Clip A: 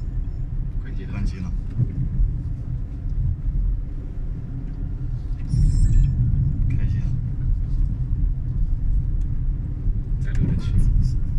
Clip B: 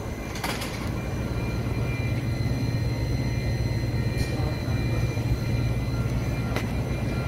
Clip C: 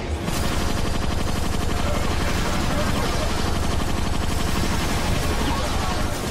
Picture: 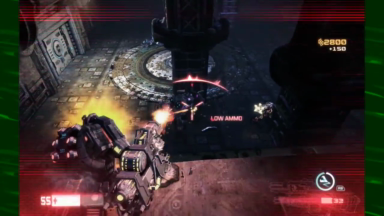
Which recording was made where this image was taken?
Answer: C